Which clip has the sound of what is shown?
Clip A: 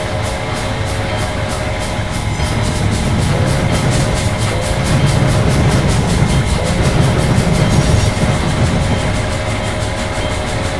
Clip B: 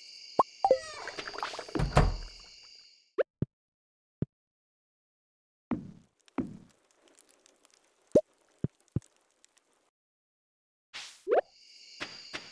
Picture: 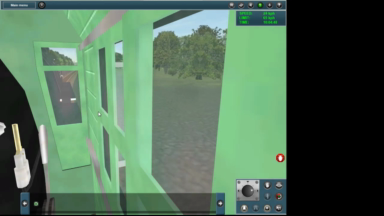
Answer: A